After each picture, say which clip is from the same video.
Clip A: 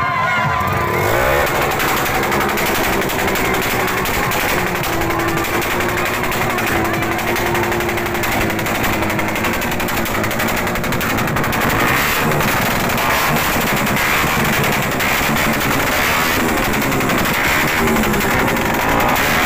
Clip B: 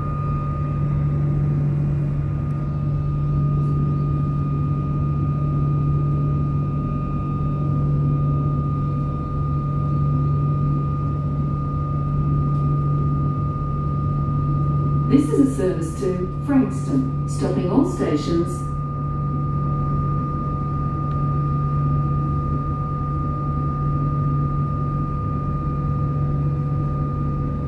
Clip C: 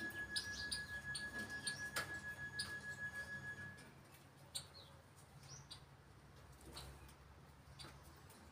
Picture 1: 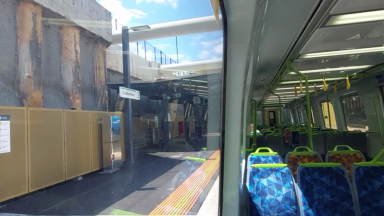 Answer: B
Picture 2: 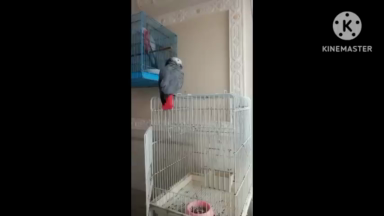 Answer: C